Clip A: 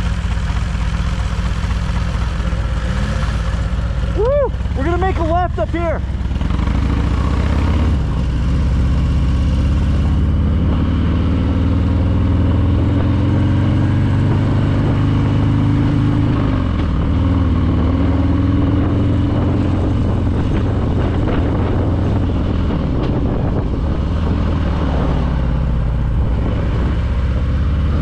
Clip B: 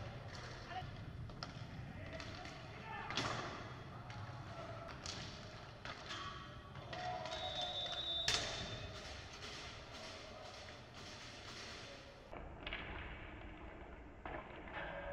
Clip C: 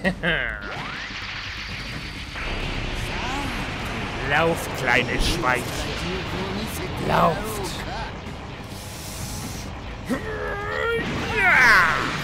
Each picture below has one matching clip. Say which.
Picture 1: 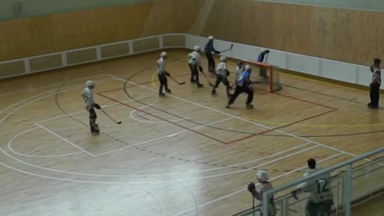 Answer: B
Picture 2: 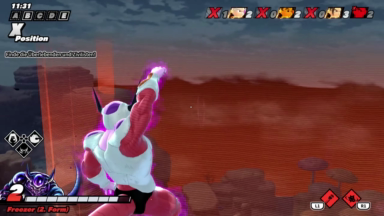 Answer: C